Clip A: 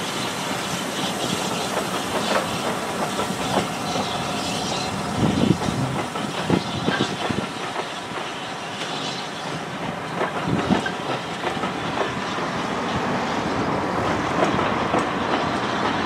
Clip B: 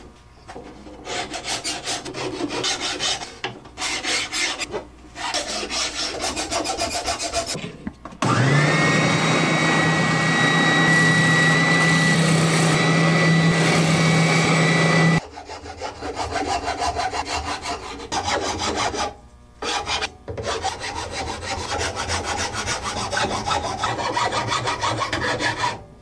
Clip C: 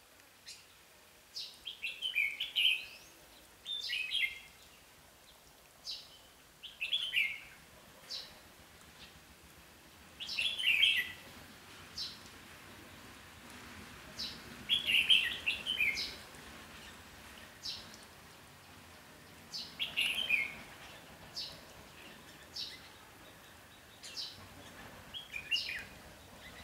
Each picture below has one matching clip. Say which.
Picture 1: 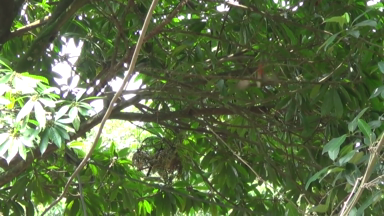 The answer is C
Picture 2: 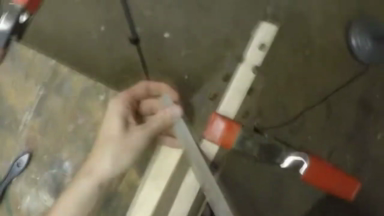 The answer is B